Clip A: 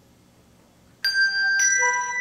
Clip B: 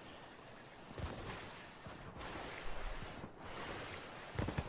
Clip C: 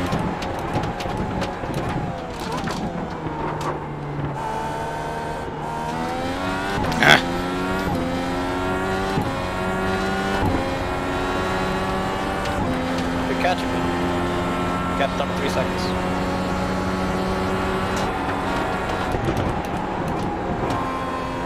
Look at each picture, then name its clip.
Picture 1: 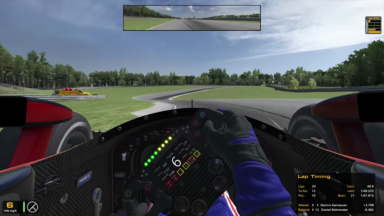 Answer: C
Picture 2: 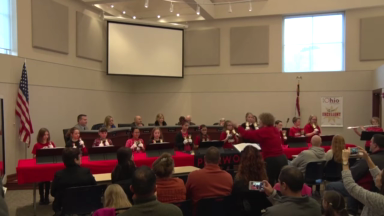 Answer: A